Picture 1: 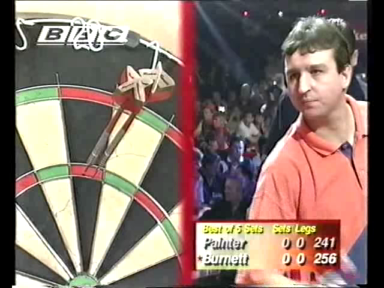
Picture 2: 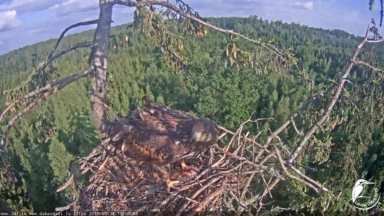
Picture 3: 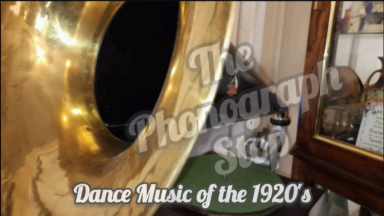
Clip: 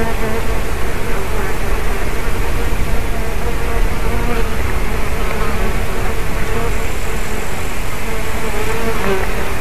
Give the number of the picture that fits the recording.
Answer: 2